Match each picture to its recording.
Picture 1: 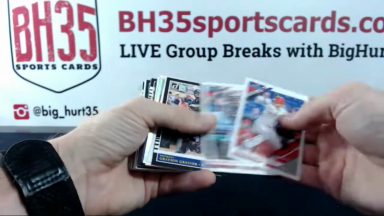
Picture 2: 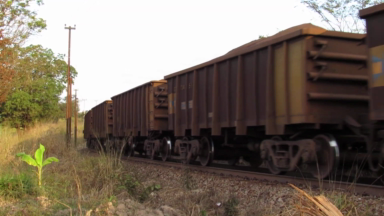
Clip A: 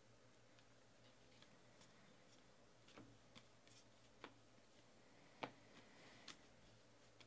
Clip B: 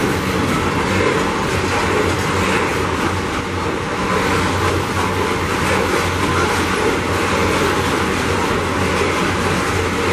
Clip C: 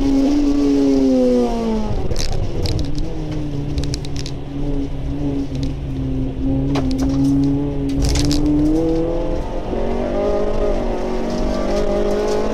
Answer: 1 A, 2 B